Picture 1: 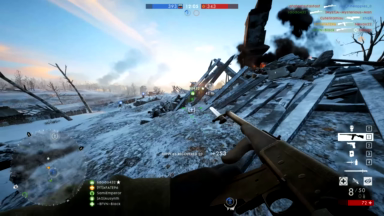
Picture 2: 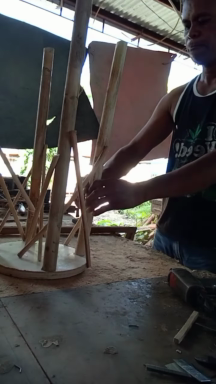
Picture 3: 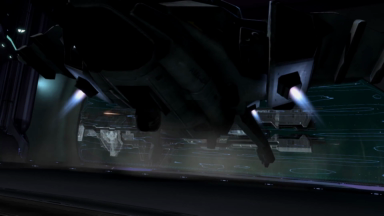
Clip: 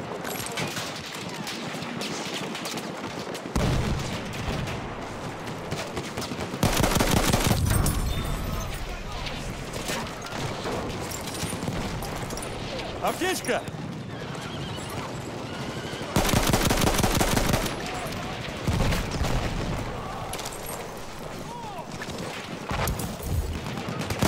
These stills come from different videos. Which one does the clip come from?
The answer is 1